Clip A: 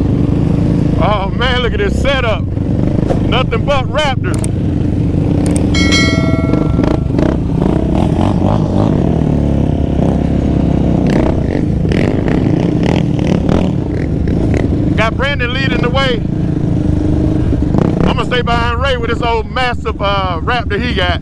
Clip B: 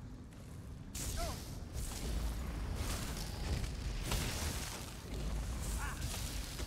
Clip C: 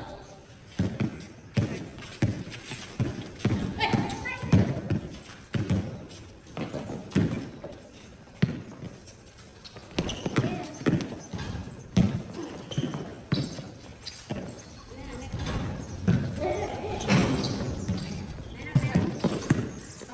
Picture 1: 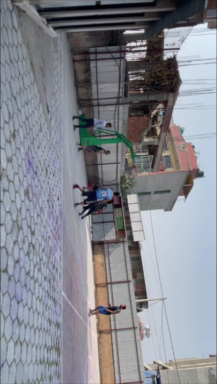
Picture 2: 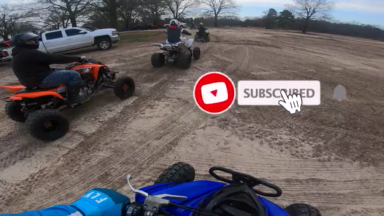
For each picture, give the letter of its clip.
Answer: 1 C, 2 A